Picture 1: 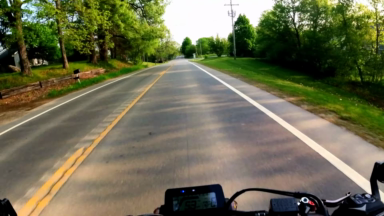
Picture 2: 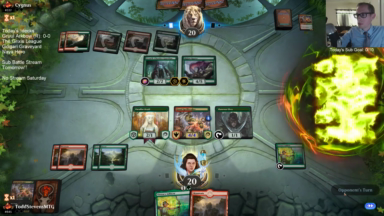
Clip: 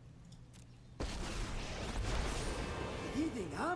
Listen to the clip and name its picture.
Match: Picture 2